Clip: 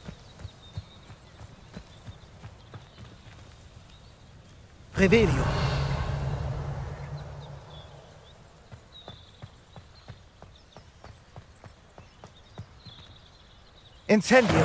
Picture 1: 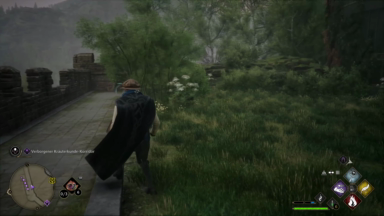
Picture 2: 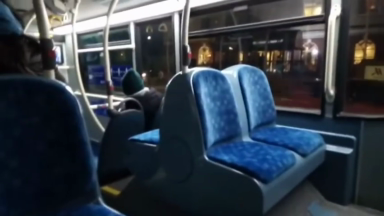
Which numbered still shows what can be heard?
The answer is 1